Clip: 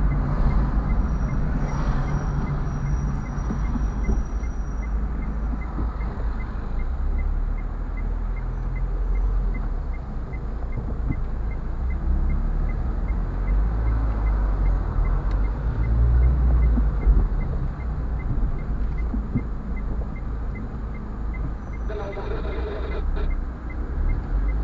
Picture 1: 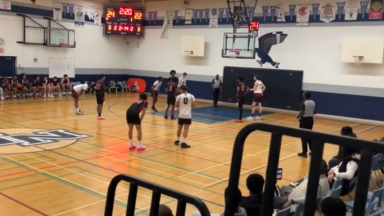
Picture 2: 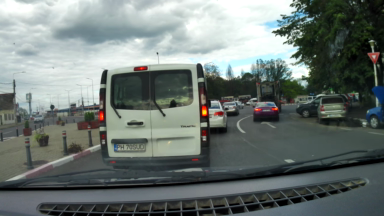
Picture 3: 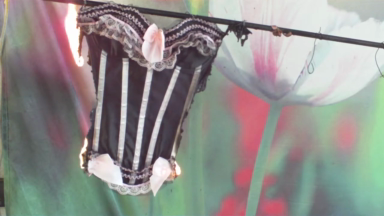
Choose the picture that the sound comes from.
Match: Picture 2